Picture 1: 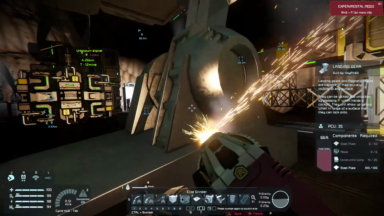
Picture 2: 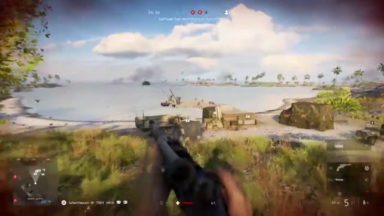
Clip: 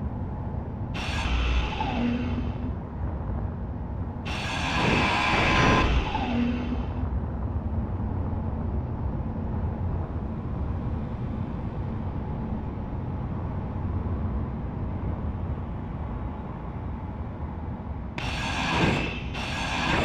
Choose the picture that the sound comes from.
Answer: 1